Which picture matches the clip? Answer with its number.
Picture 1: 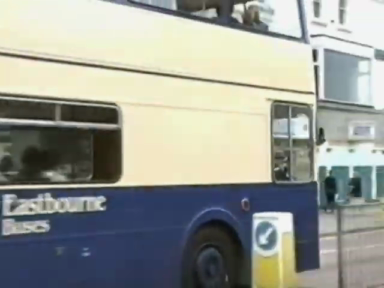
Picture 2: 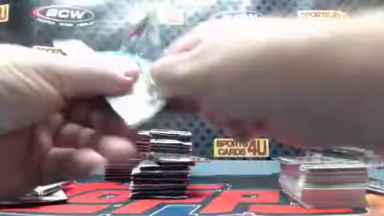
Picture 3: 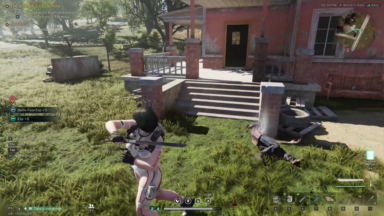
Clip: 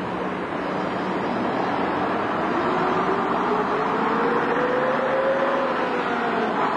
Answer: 1